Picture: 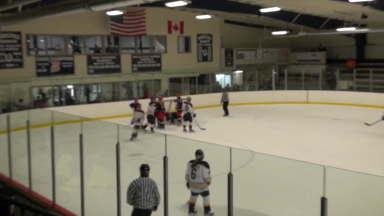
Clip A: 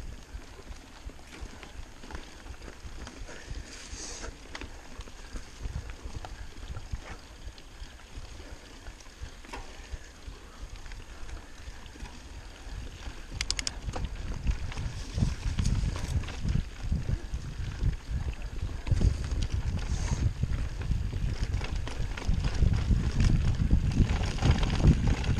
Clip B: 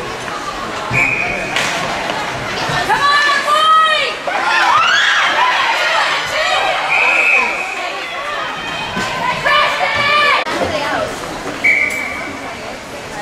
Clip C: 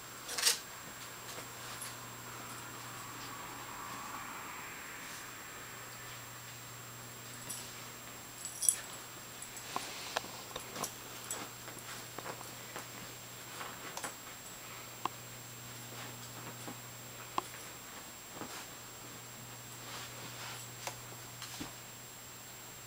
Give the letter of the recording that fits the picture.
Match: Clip B